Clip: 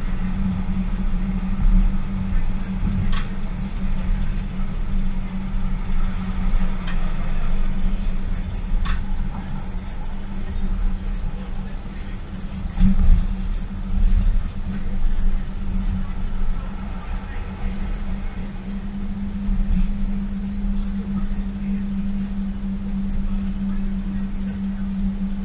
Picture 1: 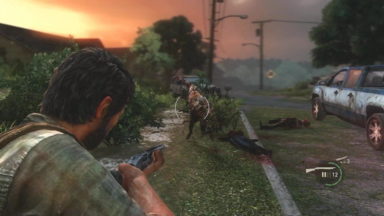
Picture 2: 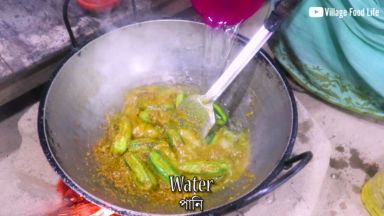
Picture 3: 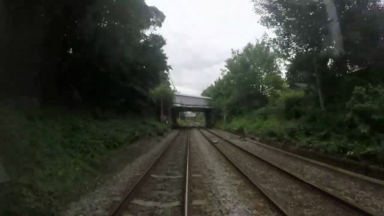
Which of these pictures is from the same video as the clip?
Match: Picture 3